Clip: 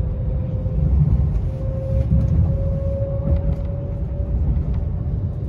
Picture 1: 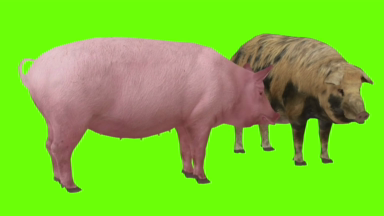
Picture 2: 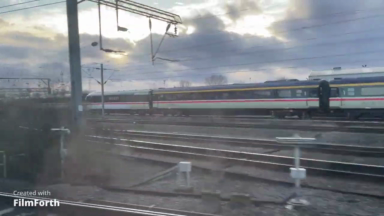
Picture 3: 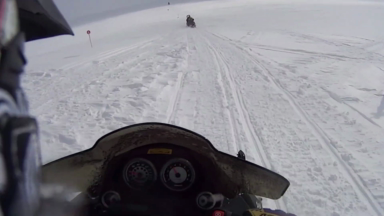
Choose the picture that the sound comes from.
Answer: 2